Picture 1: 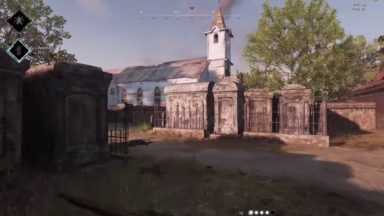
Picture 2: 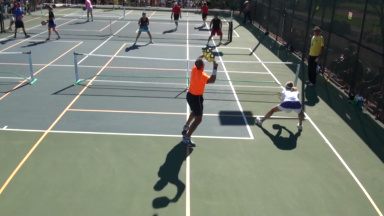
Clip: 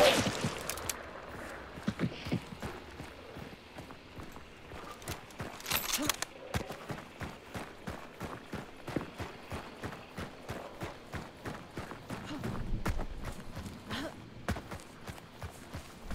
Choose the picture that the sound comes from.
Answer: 1